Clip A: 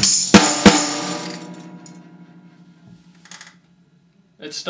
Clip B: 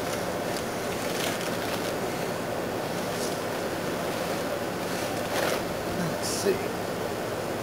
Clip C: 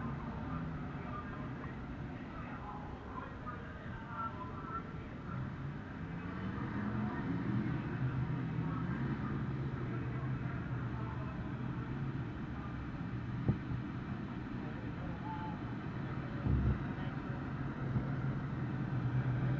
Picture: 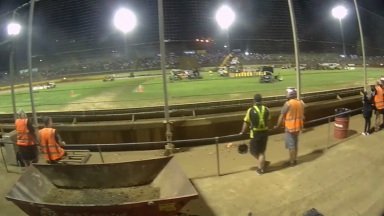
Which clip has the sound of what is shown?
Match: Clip C